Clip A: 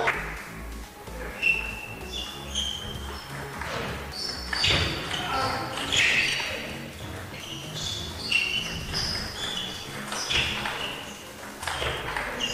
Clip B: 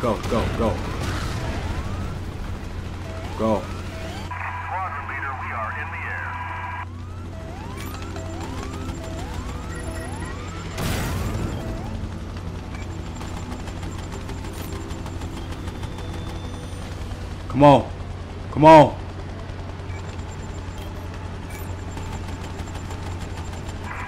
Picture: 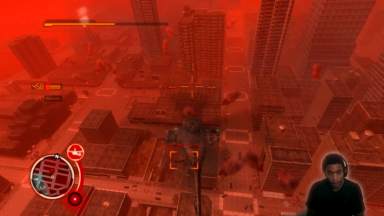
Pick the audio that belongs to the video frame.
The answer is B